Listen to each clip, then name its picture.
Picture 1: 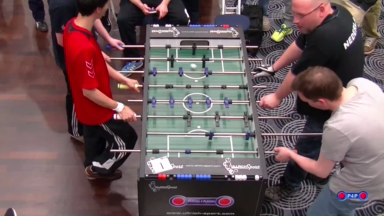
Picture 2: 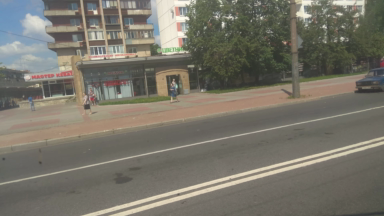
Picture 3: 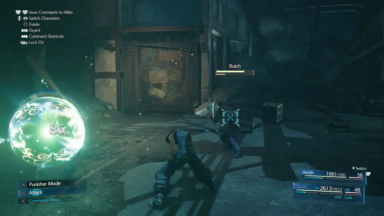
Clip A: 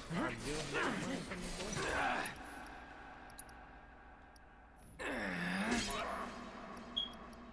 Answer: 3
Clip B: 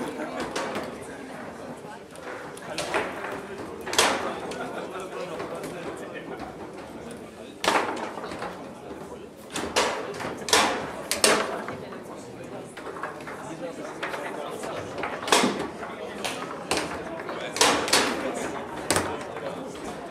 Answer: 1